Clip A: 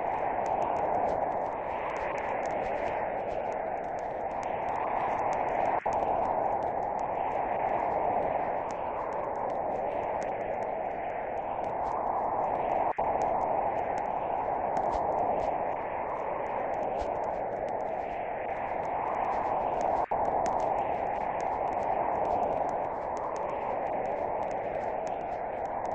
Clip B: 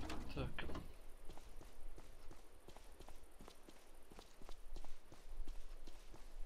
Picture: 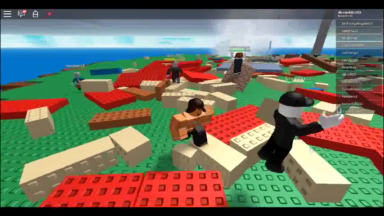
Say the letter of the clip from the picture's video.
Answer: A